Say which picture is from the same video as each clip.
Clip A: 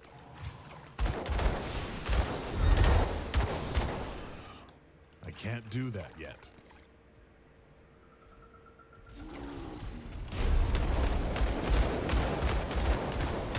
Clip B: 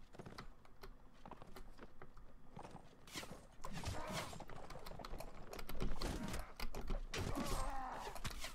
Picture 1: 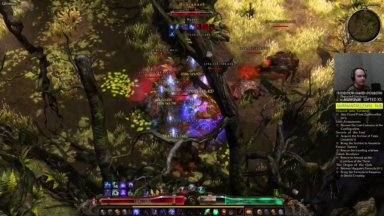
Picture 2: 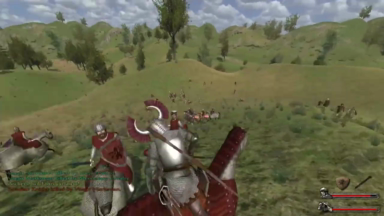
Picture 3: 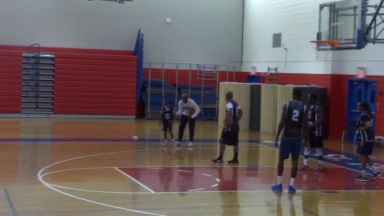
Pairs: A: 1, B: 2